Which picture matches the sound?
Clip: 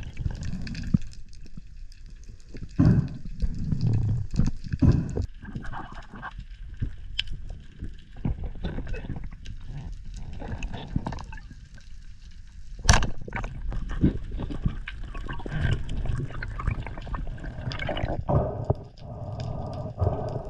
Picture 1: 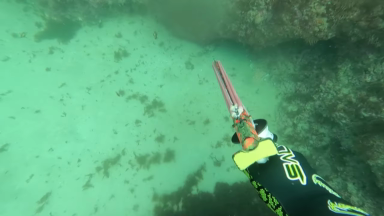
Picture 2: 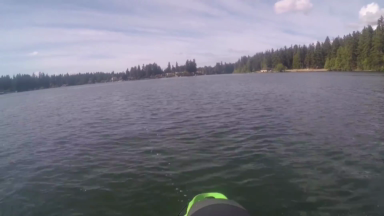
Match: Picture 1